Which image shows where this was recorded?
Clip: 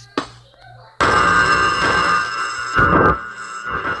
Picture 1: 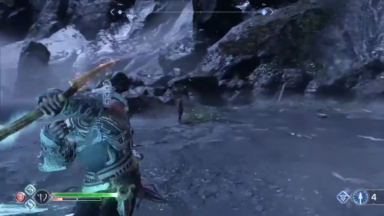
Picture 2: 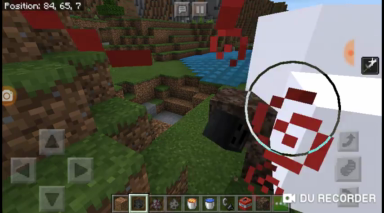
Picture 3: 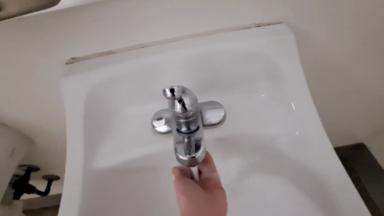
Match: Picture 2